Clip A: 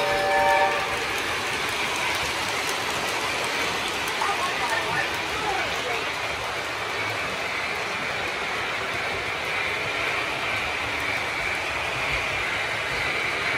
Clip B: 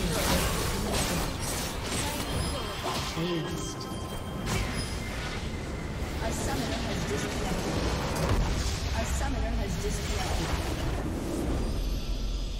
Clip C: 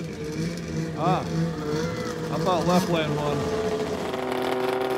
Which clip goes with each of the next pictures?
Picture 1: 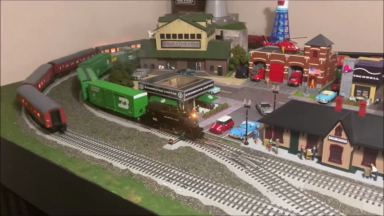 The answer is A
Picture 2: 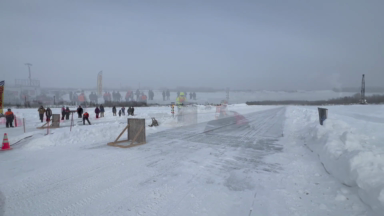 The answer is C